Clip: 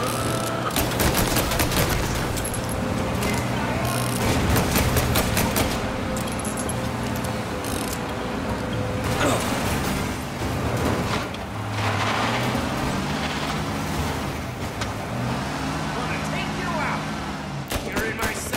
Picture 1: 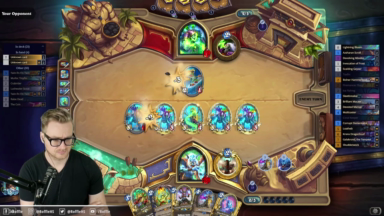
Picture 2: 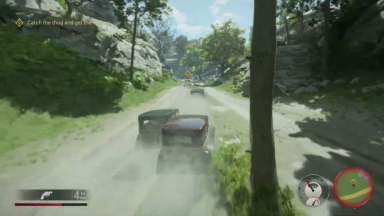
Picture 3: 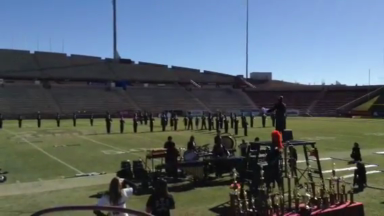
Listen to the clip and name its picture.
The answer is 2